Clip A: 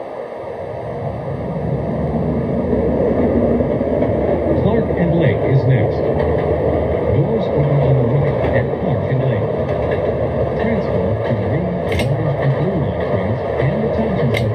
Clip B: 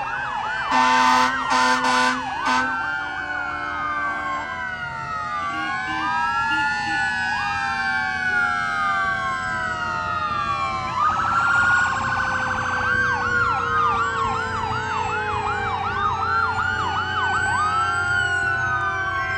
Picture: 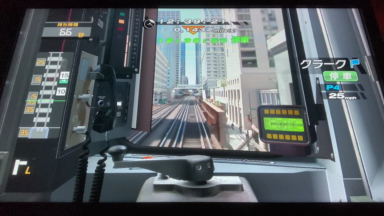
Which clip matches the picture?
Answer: A